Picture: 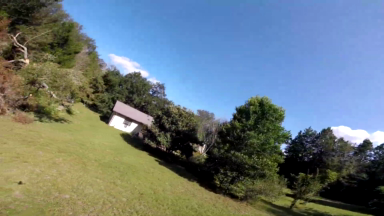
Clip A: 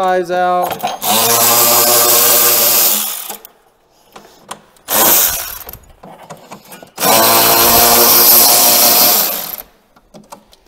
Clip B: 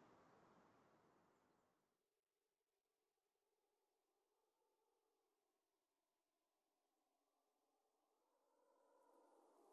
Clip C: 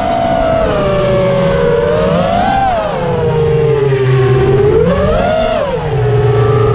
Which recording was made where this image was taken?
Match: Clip C